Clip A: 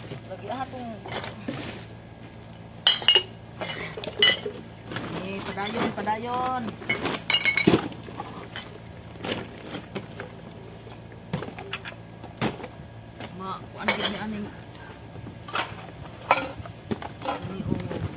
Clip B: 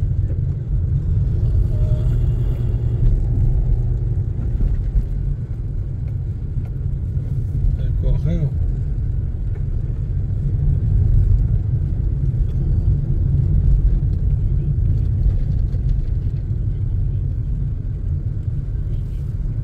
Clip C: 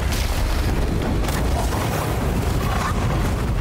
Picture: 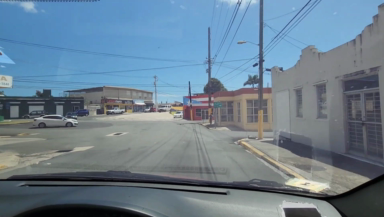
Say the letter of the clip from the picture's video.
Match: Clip B